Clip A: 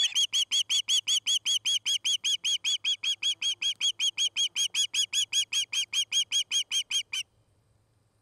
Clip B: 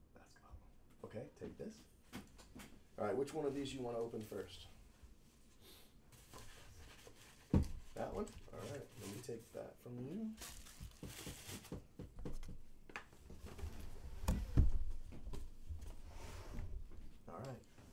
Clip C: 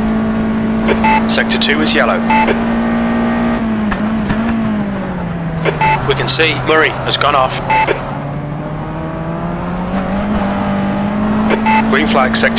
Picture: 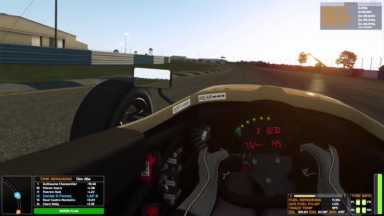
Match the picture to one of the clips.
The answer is C